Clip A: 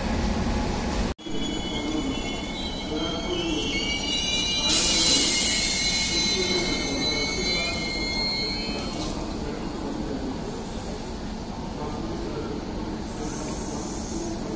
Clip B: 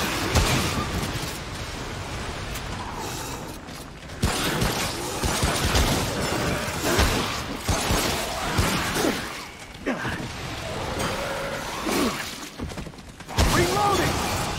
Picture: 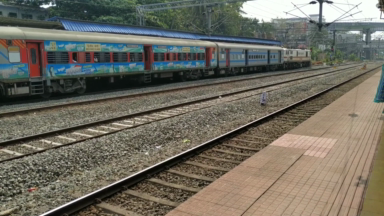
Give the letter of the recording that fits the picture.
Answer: A